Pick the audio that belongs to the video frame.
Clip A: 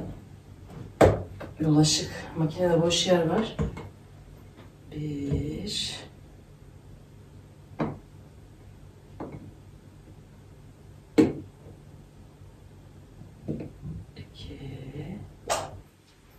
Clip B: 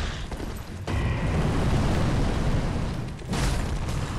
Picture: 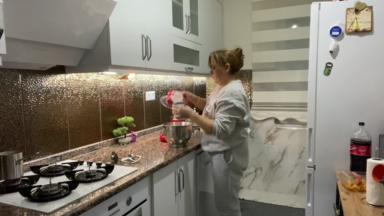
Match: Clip A